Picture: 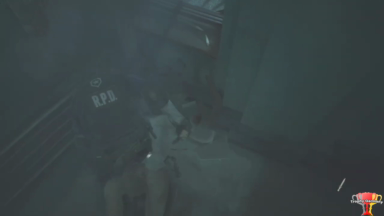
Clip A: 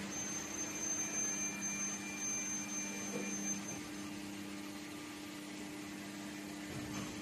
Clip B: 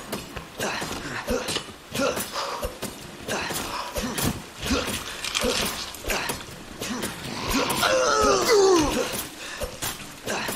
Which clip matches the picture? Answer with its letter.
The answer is B